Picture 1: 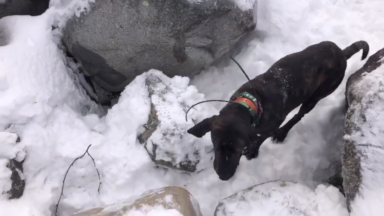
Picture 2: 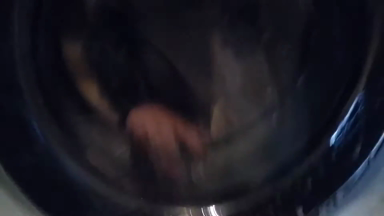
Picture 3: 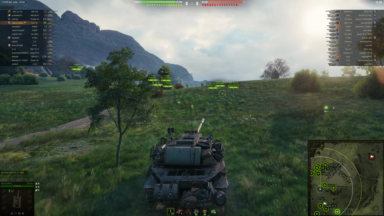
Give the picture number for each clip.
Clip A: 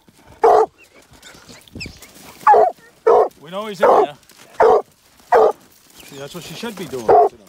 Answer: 1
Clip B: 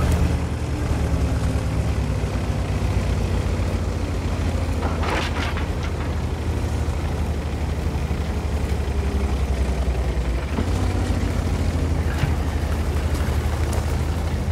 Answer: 3